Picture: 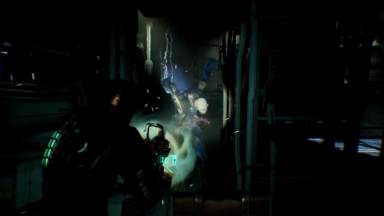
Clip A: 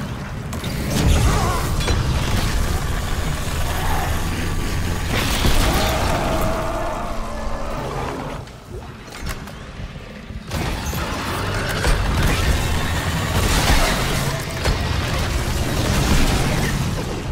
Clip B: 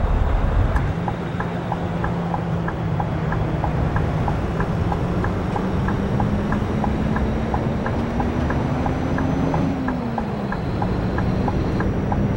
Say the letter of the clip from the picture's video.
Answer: A